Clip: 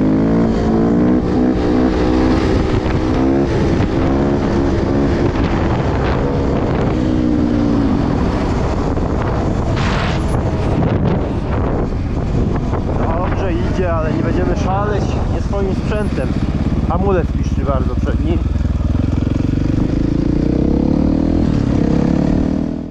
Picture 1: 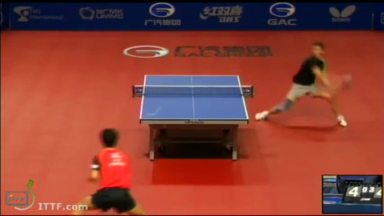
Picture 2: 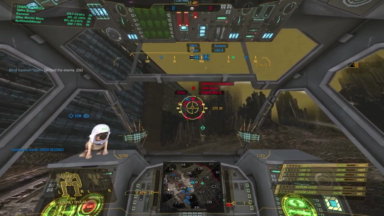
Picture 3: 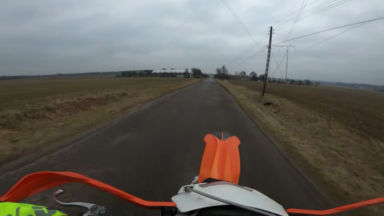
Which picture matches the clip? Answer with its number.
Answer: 3